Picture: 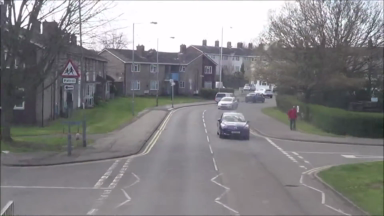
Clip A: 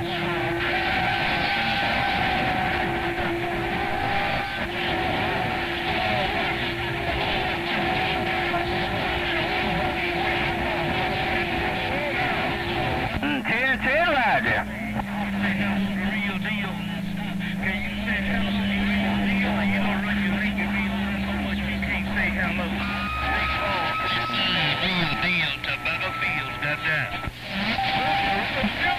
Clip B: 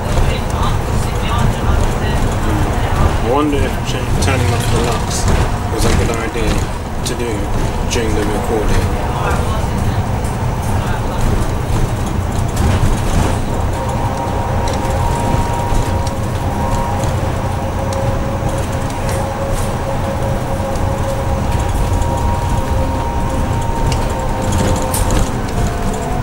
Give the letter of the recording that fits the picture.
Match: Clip B